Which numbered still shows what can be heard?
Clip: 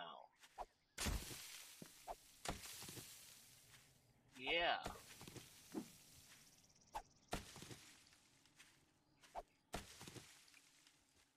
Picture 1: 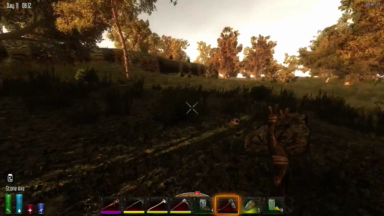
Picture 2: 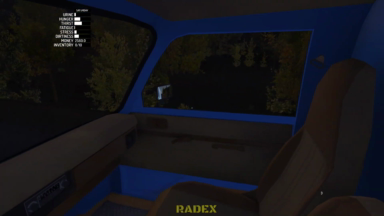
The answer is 1